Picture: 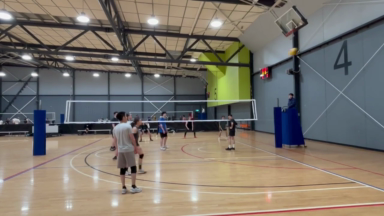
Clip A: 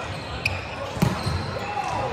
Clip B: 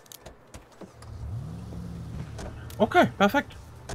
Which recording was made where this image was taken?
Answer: A